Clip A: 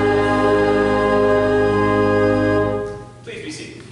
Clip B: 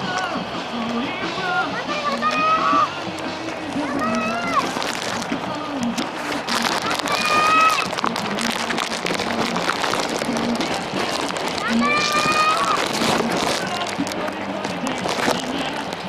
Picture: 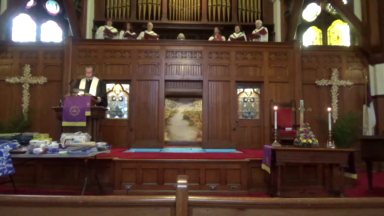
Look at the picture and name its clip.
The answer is A